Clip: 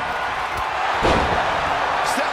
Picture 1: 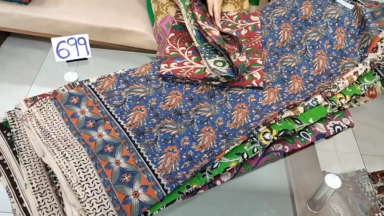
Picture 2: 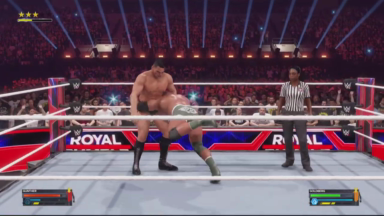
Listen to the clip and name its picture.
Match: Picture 2